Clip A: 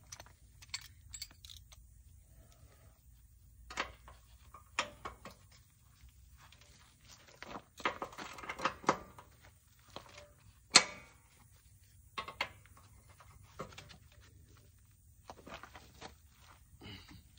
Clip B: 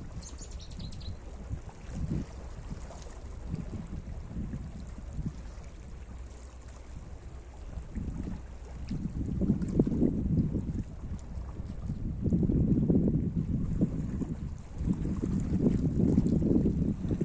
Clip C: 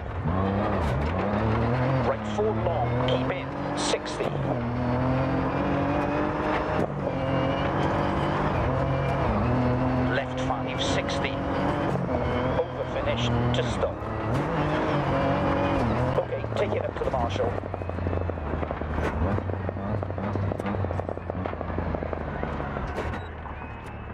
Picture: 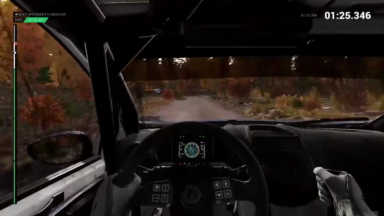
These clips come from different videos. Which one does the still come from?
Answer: C